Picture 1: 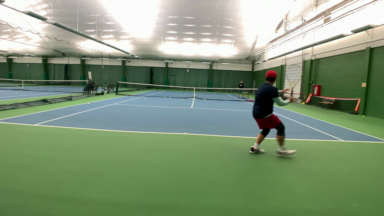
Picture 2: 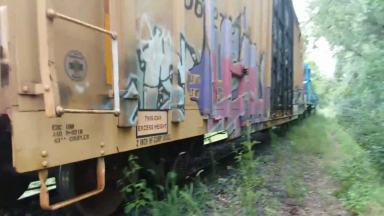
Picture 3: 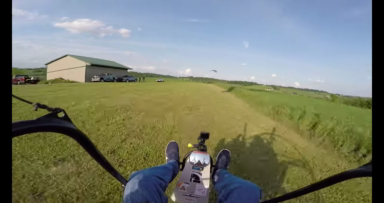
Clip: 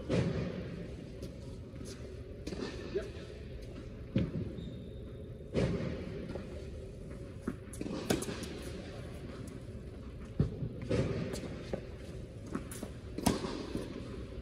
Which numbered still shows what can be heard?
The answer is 1